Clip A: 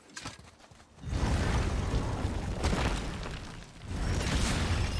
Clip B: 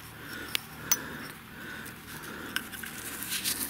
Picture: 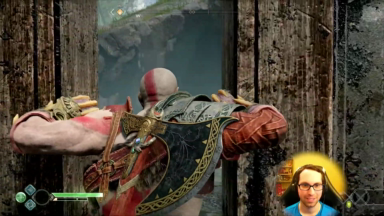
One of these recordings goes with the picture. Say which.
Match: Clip A